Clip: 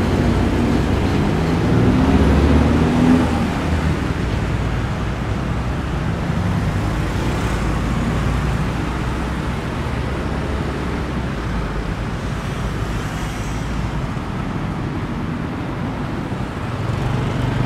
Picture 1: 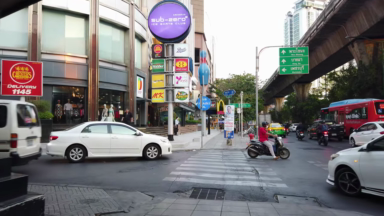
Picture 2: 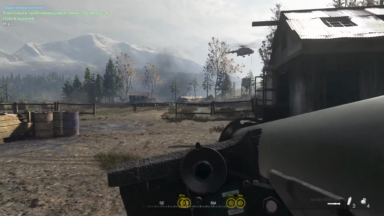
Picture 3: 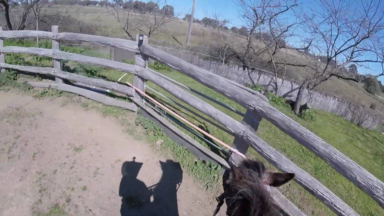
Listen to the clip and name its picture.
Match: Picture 1